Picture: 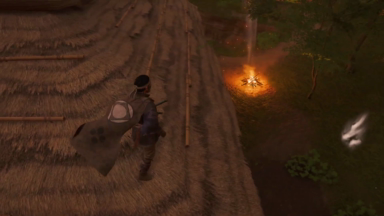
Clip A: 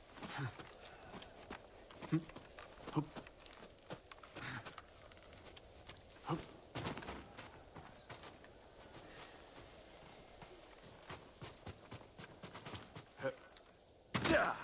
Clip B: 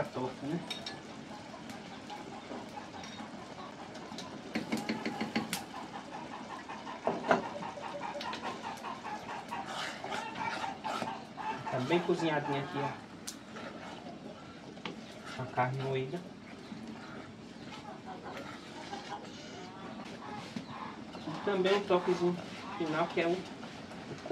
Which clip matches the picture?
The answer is A